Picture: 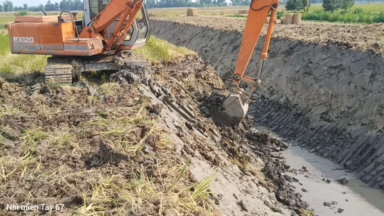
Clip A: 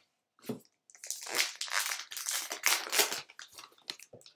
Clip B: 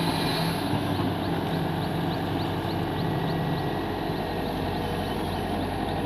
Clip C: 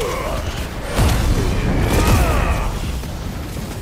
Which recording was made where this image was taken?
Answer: B